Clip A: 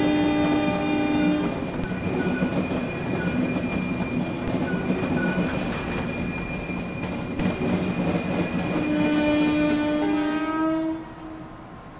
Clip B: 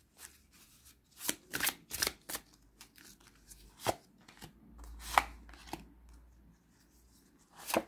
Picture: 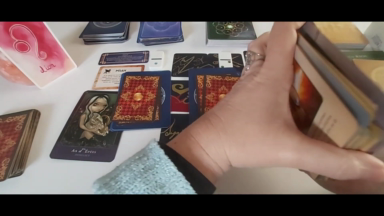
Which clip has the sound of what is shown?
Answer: B